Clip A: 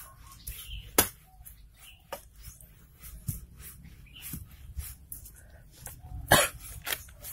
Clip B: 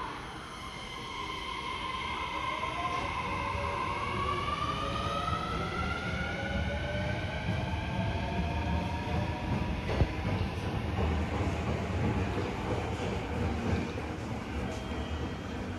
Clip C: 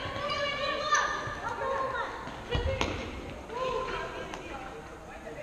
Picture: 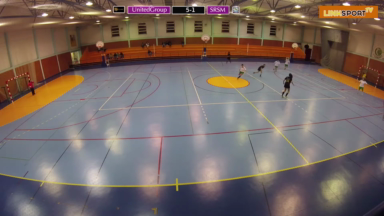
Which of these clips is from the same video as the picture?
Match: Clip C